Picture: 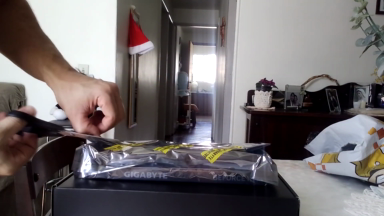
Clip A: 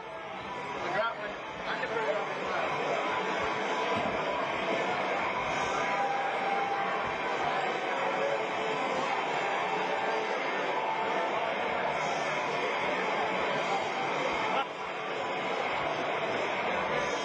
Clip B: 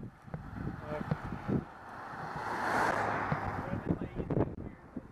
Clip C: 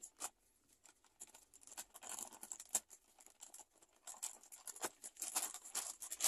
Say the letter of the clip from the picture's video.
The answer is C